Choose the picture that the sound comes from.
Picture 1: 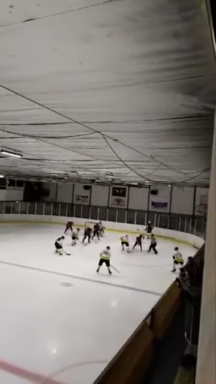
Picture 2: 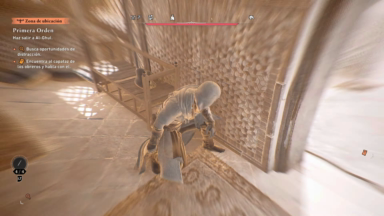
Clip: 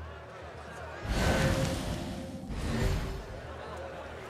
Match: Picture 2